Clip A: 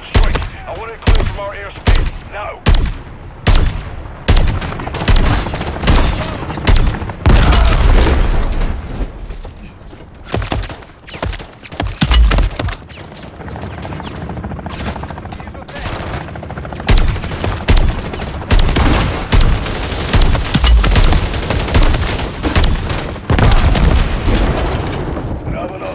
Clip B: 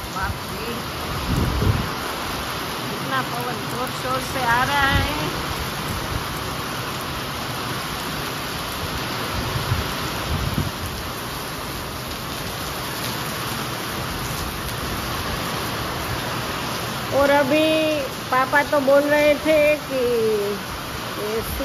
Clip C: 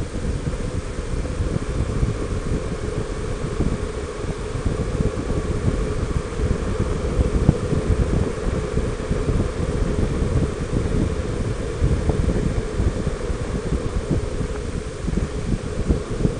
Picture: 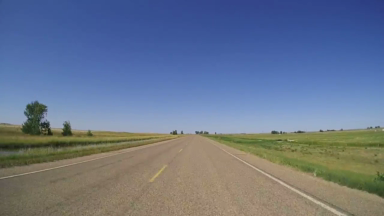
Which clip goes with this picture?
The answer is C